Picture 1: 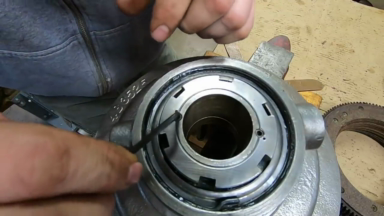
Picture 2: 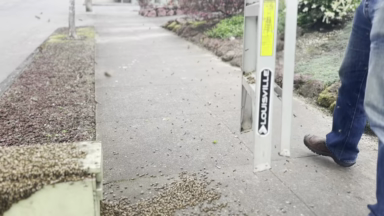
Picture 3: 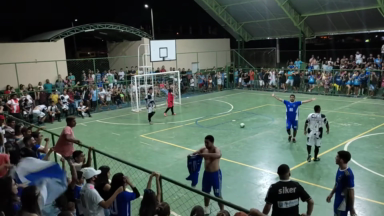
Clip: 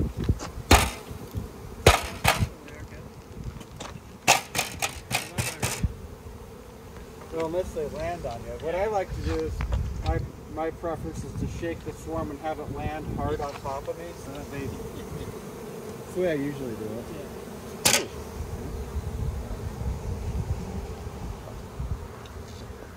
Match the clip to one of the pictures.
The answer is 2